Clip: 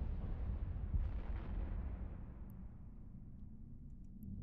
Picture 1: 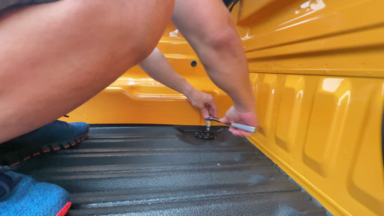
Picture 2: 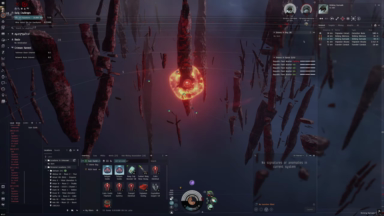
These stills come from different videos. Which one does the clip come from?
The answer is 2